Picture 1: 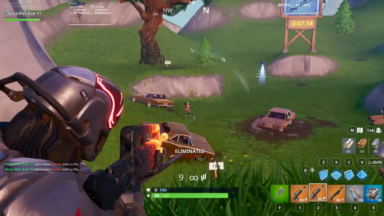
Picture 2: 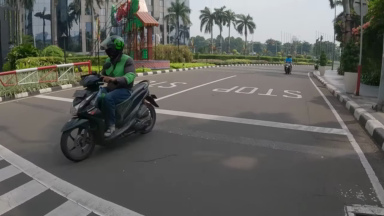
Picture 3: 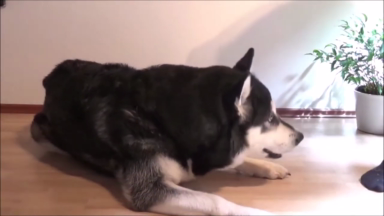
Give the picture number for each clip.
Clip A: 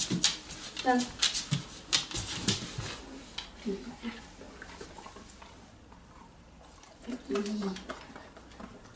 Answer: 3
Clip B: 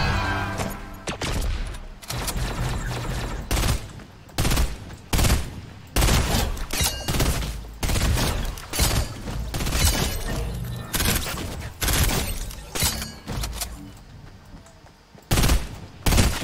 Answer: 1